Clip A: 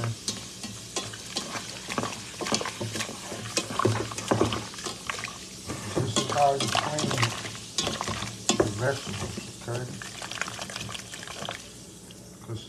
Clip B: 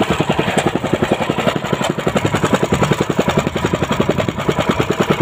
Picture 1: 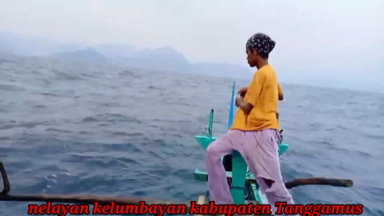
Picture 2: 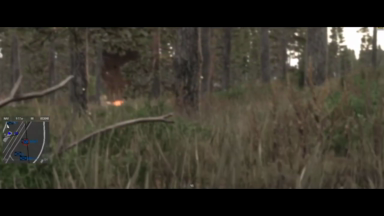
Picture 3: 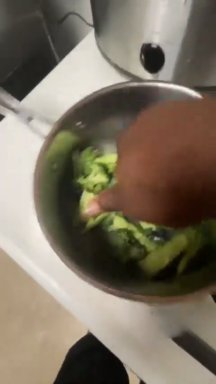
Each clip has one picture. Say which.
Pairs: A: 3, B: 1